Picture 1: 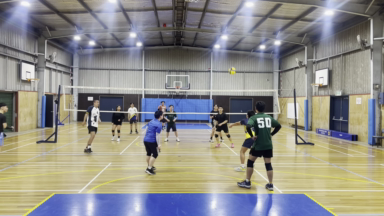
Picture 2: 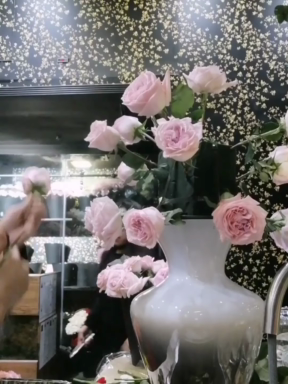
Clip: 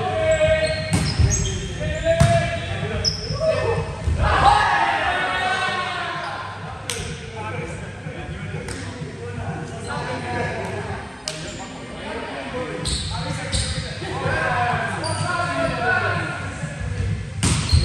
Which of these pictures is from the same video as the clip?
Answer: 1